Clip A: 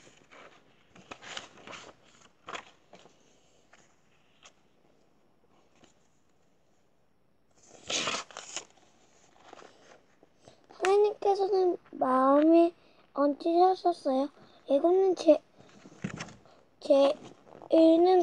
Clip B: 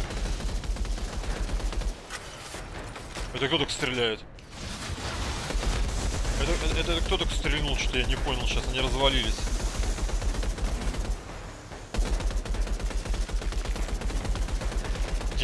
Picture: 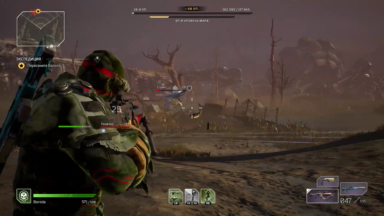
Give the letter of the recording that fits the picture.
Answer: B